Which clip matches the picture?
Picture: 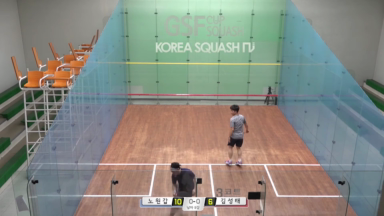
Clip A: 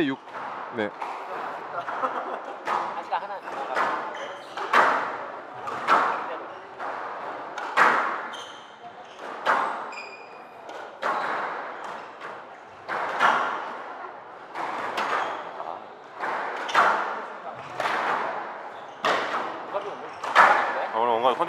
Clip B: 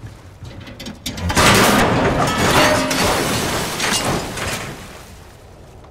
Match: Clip A